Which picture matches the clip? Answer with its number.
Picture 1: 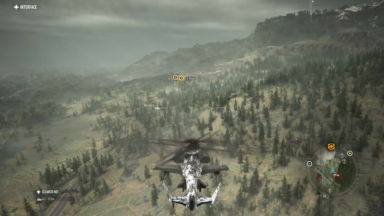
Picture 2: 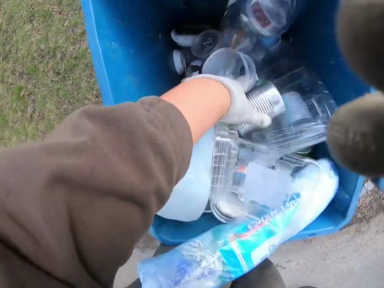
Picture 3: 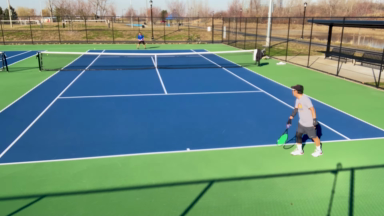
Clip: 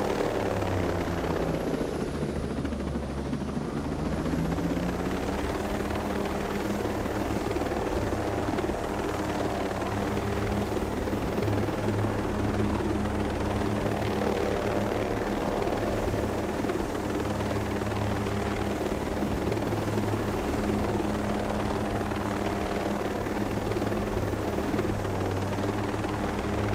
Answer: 1